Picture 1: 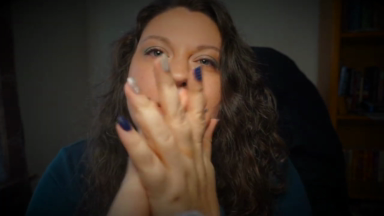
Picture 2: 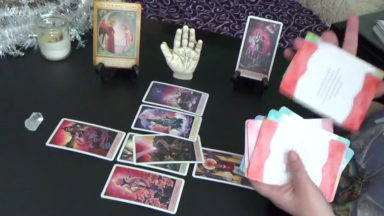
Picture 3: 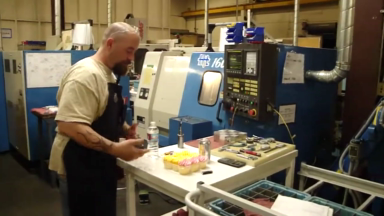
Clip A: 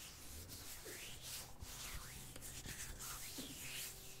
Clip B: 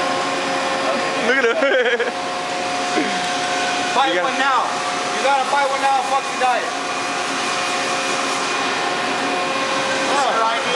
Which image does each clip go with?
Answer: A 1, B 3